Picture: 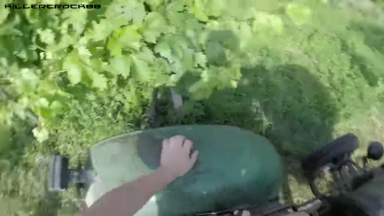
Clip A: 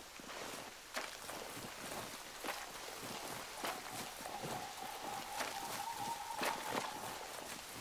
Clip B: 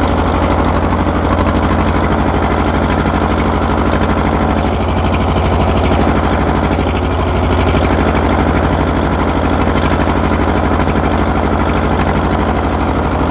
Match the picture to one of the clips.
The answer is B